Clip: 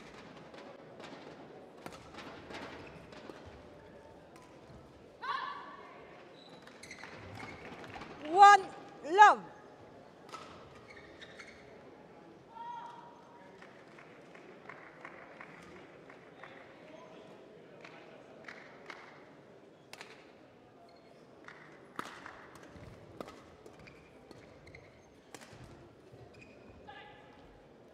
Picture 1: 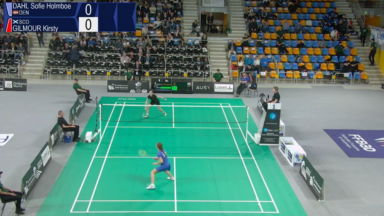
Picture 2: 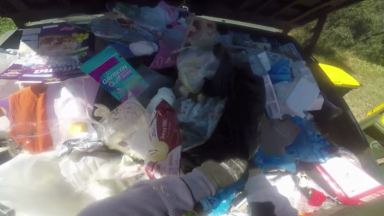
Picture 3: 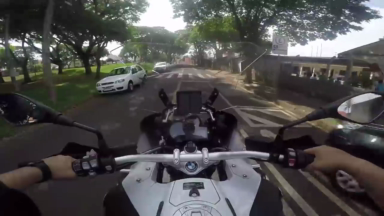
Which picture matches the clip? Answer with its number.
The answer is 1